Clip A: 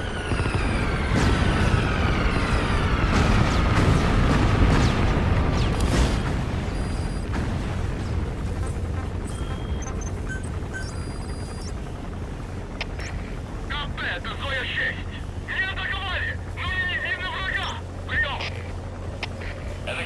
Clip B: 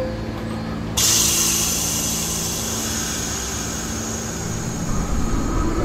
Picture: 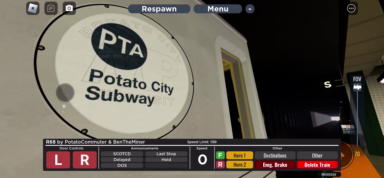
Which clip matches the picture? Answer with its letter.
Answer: B